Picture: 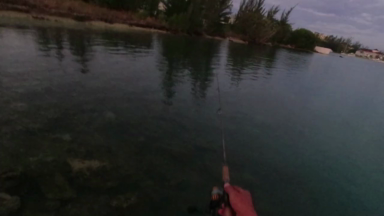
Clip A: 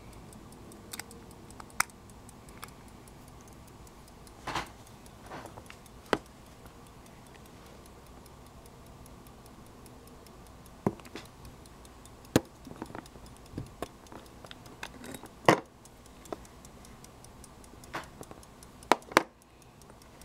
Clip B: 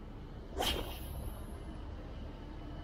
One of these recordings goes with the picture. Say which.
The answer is B